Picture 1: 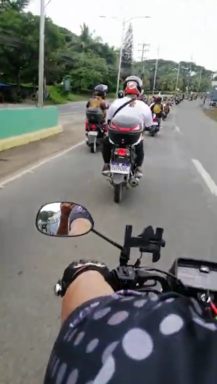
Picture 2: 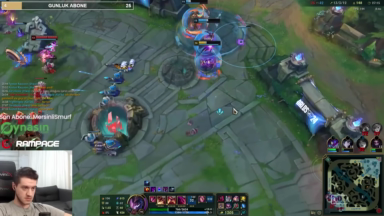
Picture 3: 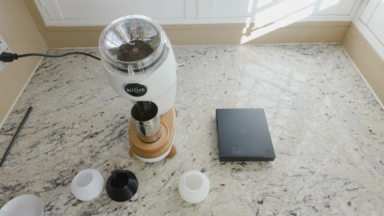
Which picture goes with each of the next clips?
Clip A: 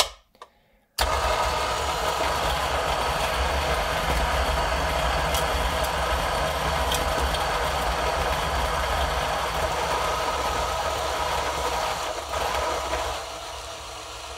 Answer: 3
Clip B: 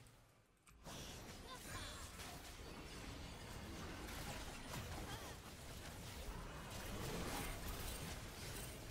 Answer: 2